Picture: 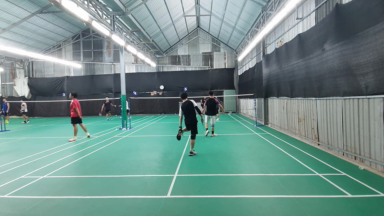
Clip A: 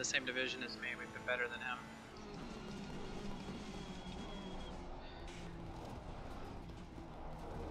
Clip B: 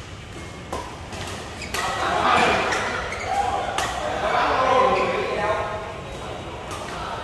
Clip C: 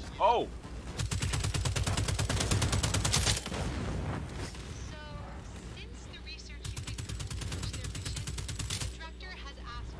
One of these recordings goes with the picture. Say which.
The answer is B